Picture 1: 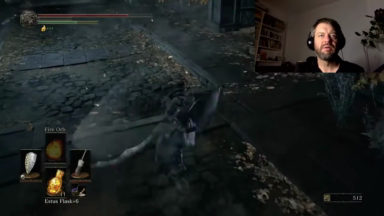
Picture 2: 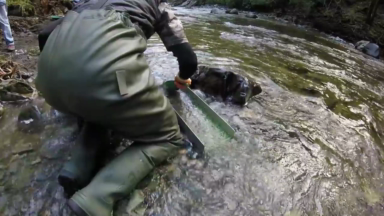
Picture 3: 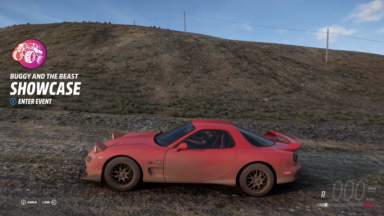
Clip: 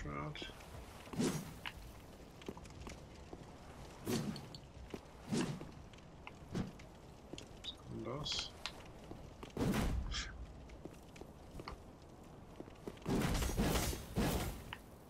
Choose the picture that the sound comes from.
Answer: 1